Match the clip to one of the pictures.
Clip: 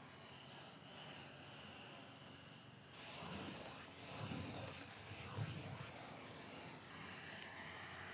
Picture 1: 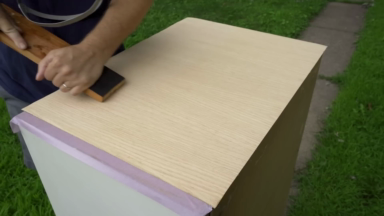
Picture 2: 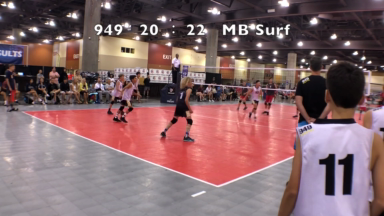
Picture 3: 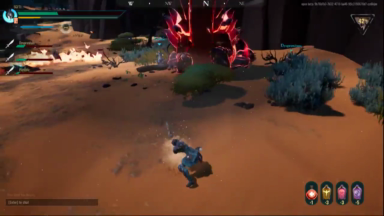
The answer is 1